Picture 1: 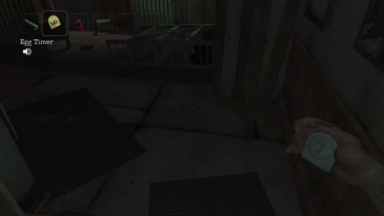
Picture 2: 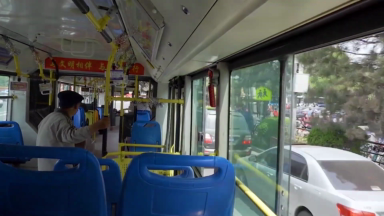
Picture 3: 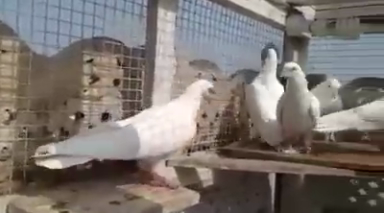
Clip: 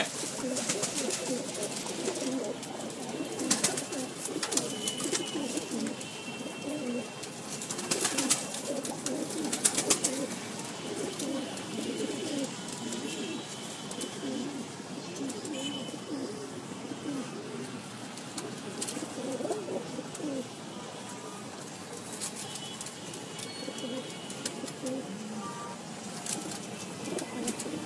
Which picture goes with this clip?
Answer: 3